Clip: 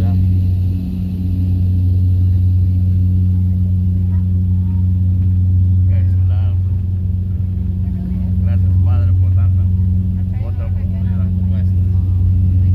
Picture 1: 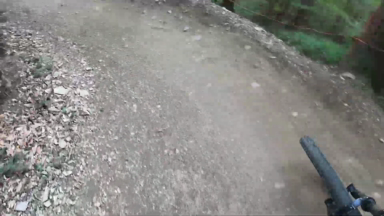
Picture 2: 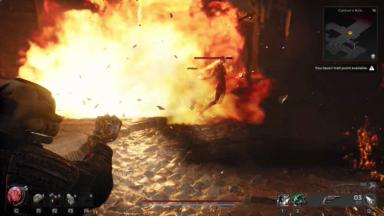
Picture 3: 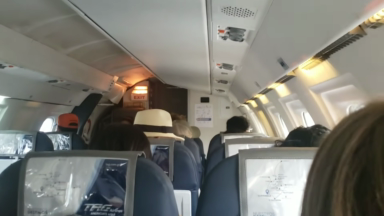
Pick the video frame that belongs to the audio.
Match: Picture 3